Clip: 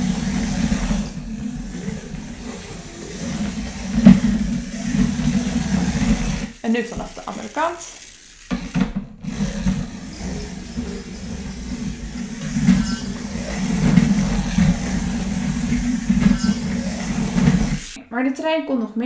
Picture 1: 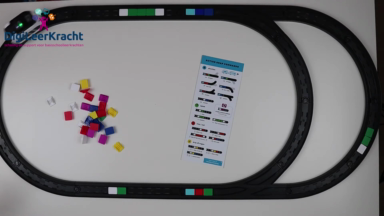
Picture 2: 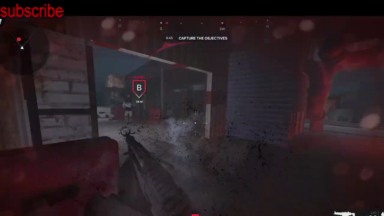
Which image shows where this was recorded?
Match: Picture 1